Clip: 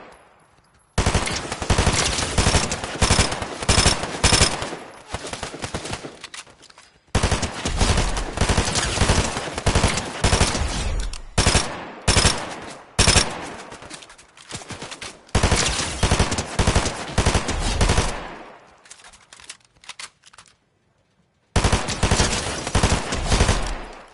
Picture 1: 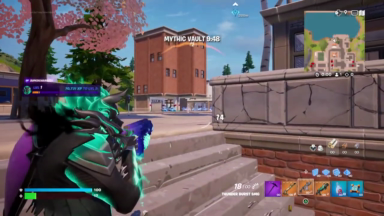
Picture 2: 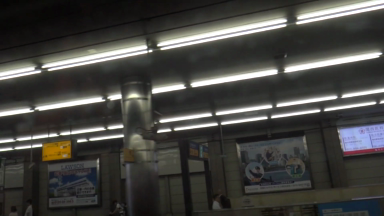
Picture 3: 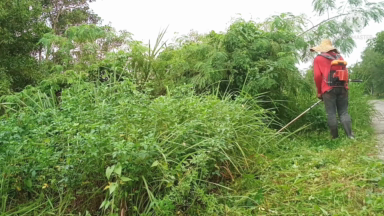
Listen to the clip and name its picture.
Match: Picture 1